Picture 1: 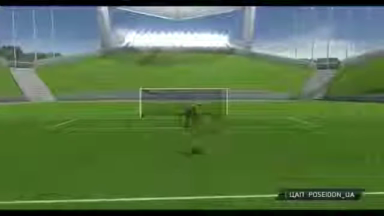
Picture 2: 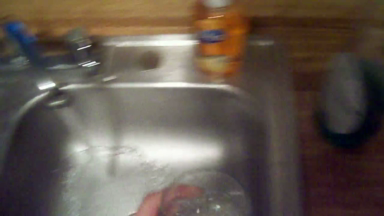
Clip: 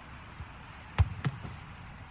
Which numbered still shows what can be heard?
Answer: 1